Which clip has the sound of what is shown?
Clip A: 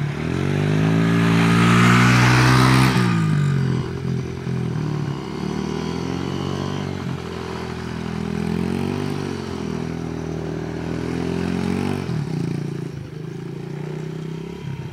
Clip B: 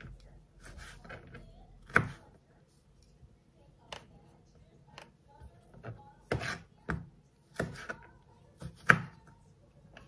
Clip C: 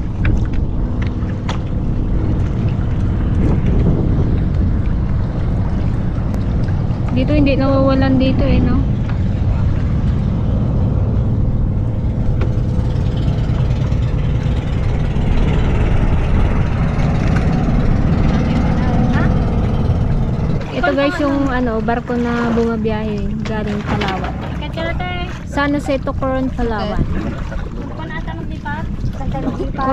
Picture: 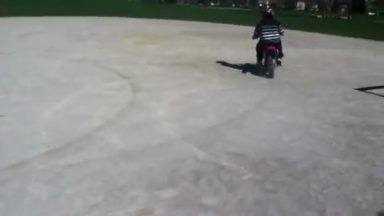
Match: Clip A